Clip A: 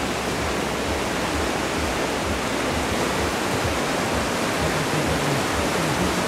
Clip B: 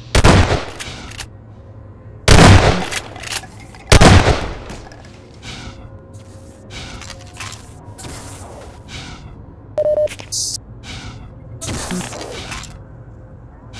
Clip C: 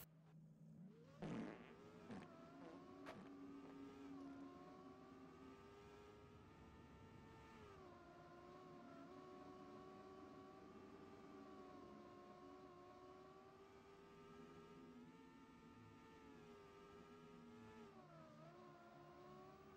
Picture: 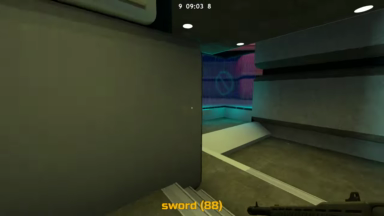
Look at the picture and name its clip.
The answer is B